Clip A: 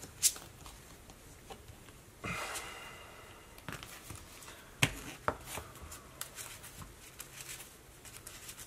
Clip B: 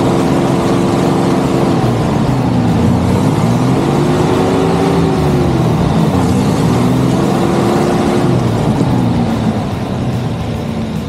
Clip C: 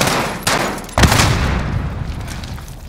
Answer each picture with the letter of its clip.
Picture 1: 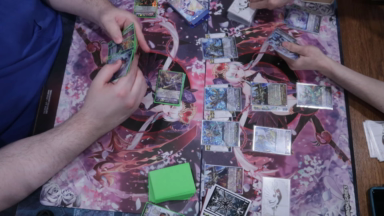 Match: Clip A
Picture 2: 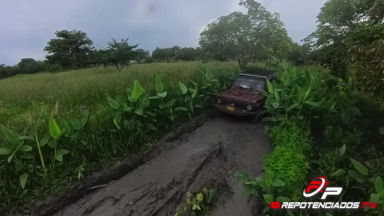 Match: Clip B